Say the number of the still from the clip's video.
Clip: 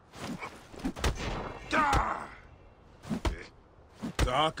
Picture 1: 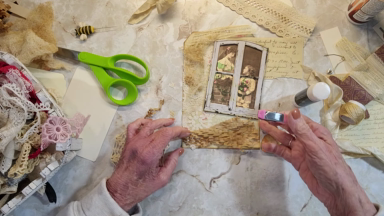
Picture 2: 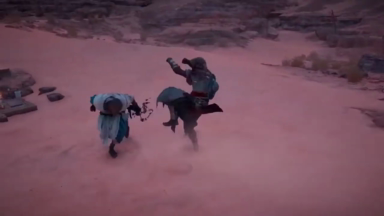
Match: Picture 2